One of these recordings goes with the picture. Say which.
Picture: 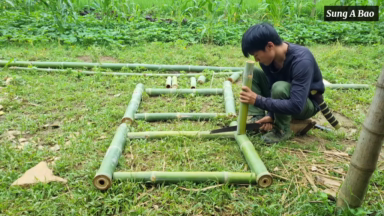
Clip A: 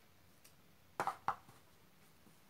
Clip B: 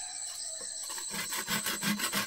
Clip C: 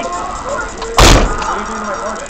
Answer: B